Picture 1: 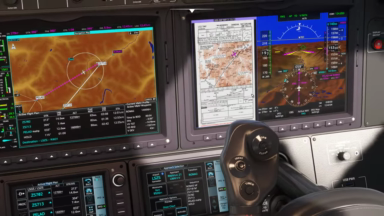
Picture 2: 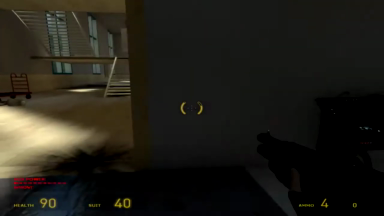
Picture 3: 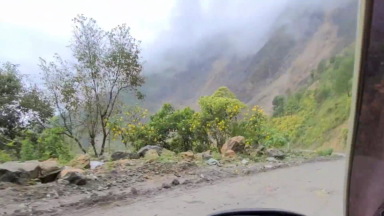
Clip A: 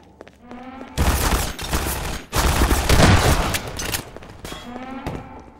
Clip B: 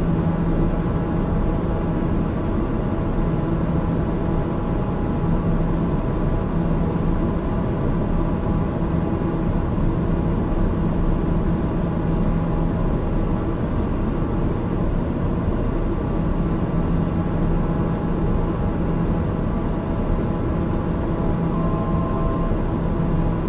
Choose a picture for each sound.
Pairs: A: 2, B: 1